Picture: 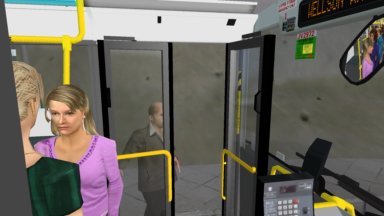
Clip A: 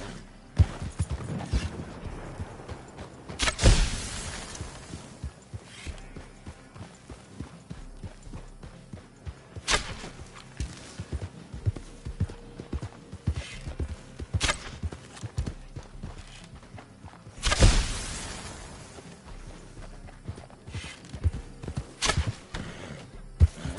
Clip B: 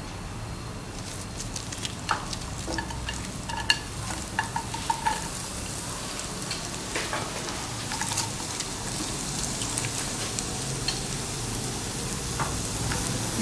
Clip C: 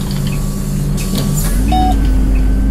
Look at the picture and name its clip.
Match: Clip C